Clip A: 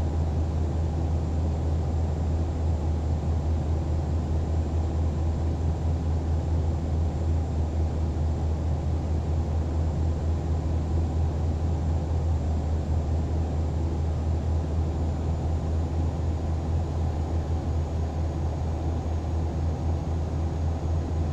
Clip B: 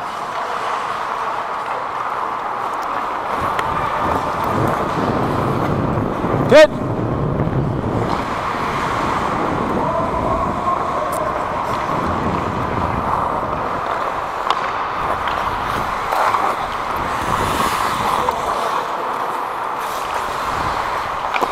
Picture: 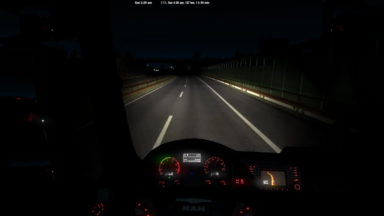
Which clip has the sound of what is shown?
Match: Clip A